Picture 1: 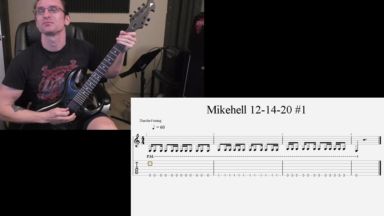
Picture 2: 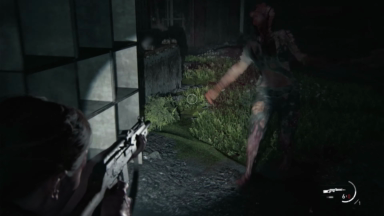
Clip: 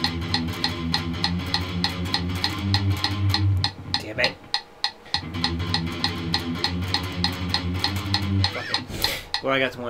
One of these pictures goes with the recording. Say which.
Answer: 1